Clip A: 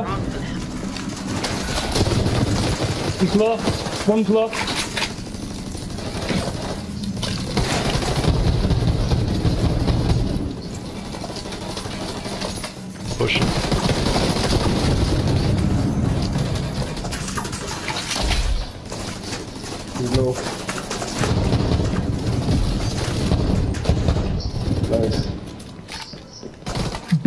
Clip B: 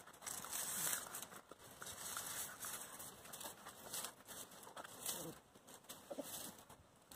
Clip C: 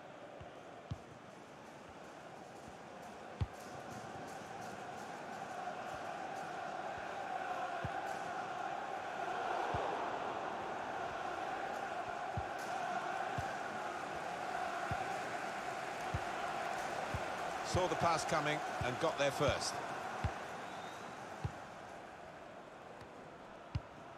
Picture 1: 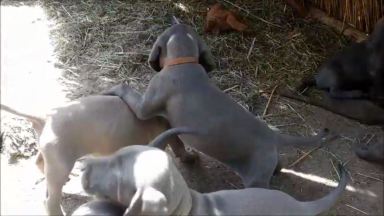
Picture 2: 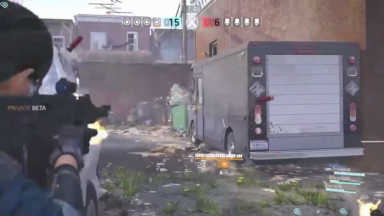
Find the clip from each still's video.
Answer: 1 B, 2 A